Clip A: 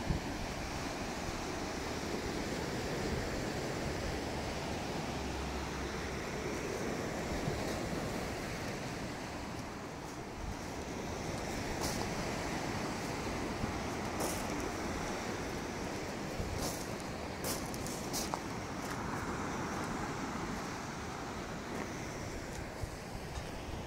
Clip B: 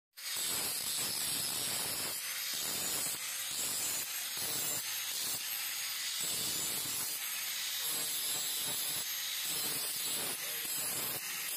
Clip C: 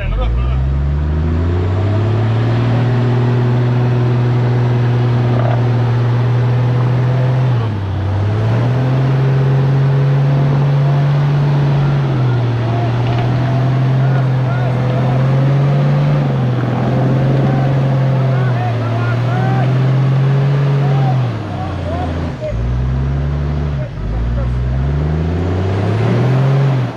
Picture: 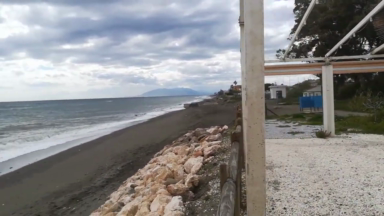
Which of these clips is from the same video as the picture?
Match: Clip A